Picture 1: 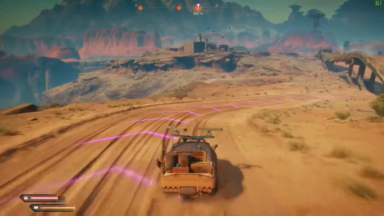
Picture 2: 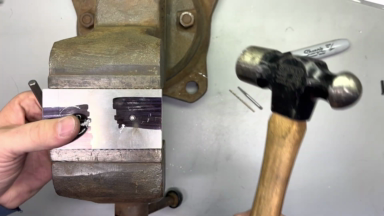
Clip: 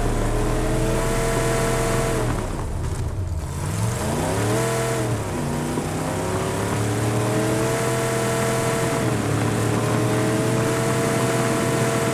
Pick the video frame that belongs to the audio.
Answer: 1